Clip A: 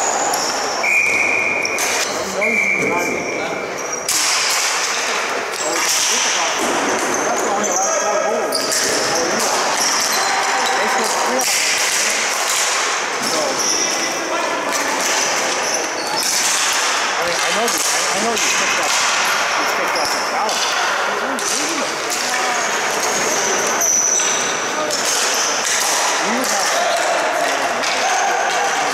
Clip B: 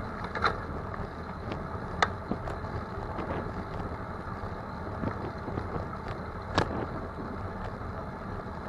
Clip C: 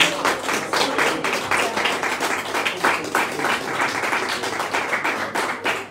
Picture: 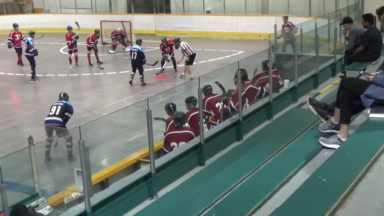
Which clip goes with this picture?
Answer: A